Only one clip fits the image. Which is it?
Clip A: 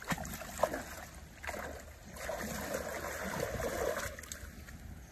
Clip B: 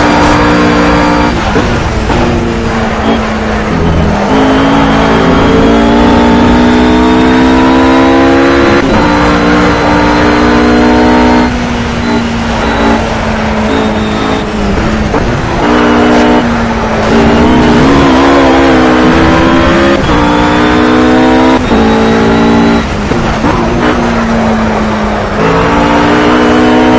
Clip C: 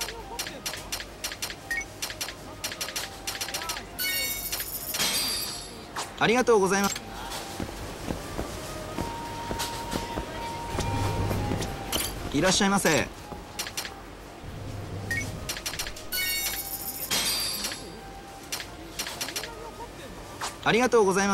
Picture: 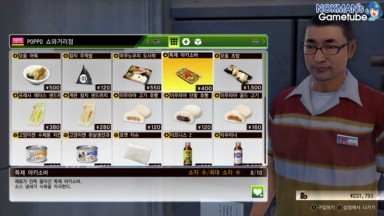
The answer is C